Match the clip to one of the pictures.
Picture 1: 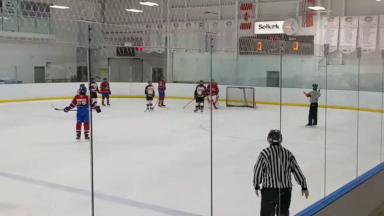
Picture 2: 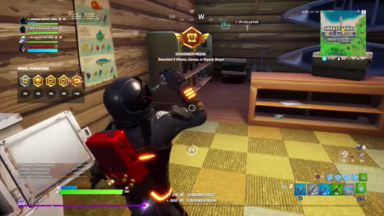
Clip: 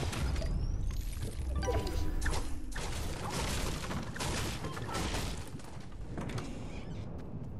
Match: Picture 2